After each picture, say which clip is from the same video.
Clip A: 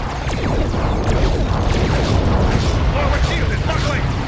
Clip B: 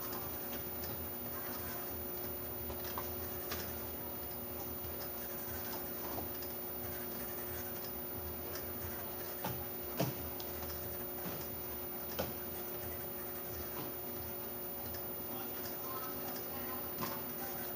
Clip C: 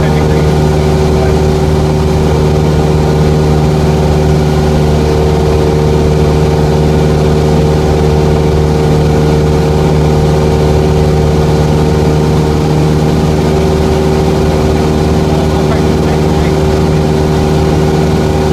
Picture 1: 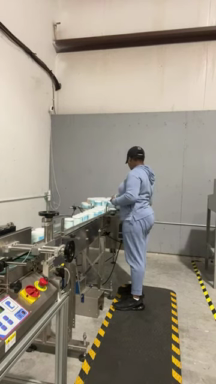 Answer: B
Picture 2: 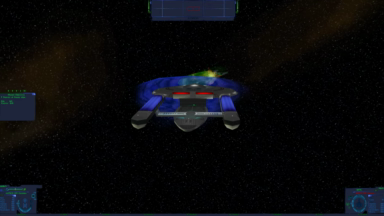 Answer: A